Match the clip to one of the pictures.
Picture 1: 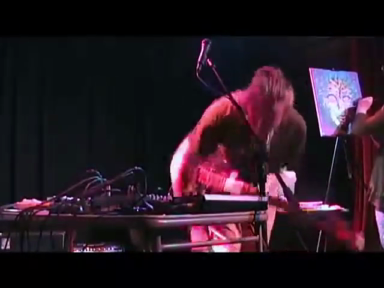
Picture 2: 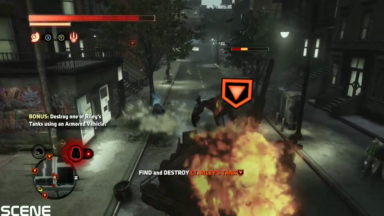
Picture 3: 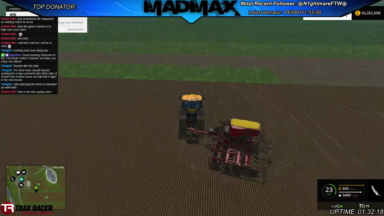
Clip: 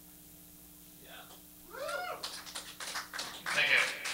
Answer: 1